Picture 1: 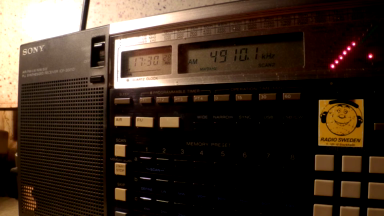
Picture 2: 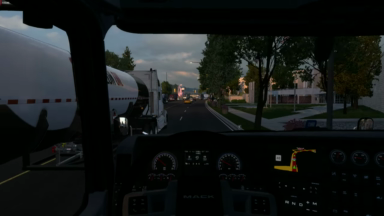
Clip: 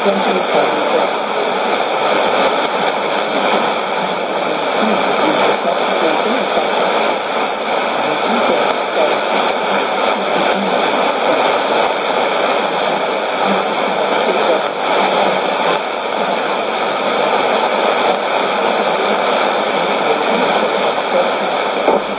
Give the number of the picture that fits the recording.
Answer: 1